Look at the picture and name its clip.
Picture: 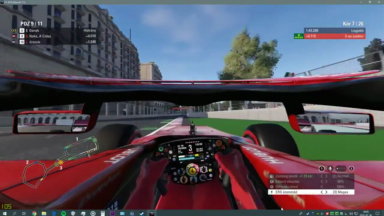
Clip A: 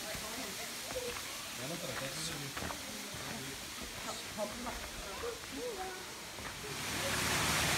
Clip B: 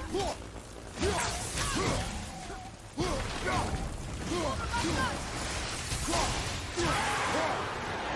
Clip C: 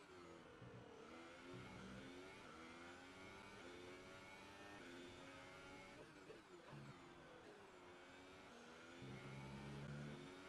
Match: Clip C